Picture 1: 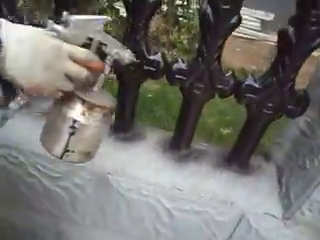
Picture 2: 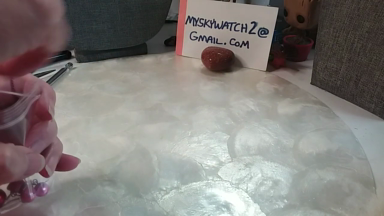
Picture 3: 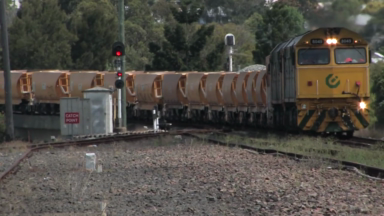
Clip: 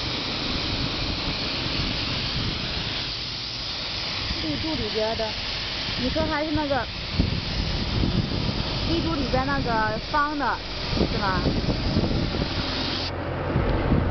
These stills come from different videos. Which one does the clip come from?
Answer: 1